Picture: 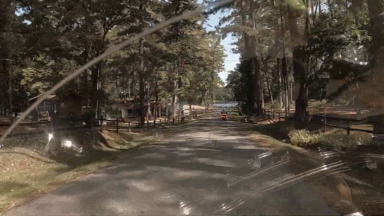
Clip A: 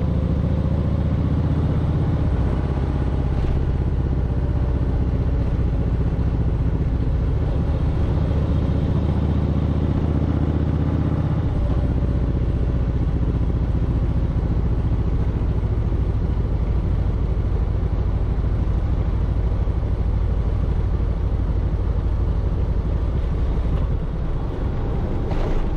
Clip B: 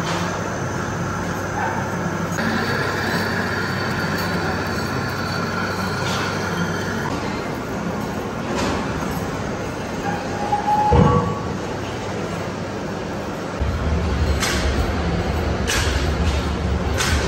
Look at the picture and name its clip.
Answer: A